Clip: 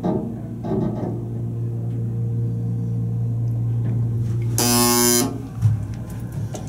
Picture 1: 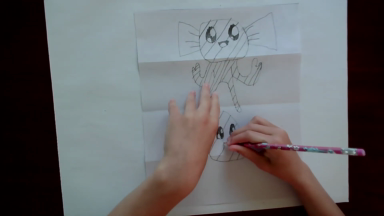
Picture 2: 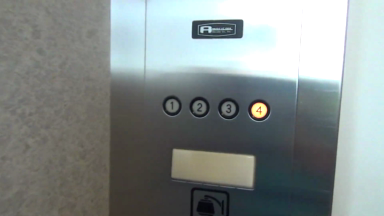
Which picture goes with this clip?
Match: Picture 2